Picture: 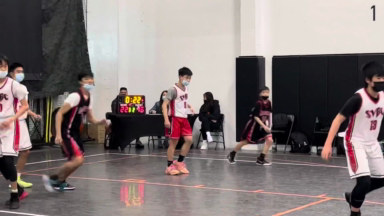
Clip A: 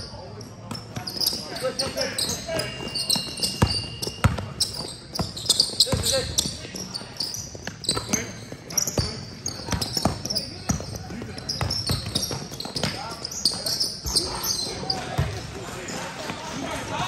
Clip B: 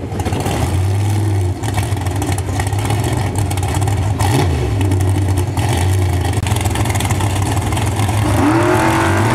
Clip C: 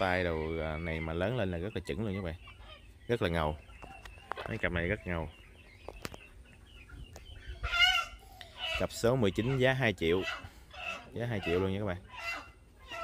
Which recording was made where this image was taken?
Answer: A